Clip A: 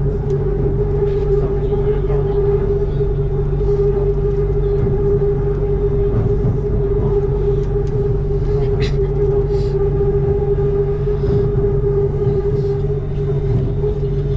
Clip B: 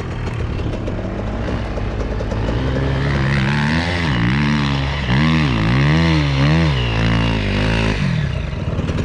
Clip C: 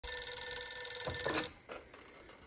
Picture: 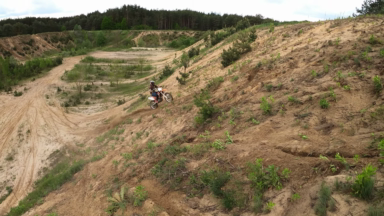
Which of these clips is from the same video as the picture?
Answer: B